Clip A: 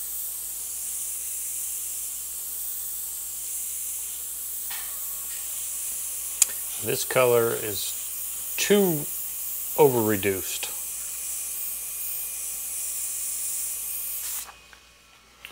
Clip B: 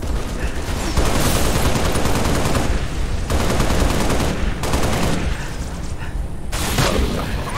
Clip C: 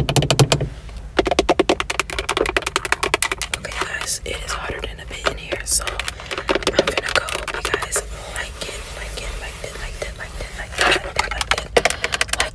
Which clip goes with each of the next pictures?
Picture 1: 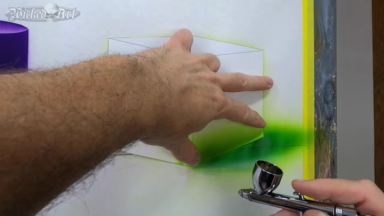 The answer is A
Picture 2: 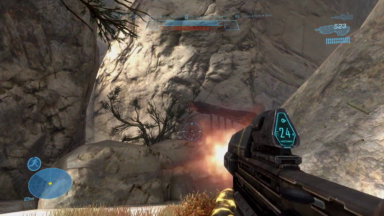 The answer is B